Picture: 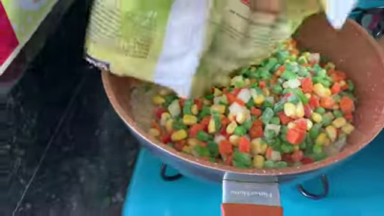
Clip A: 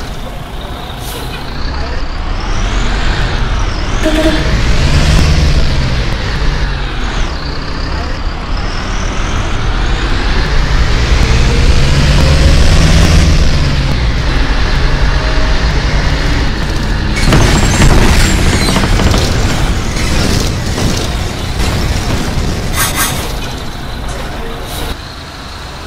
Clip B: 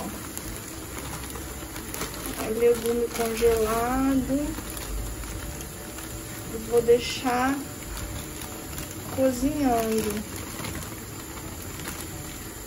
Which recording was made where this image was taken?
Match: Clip B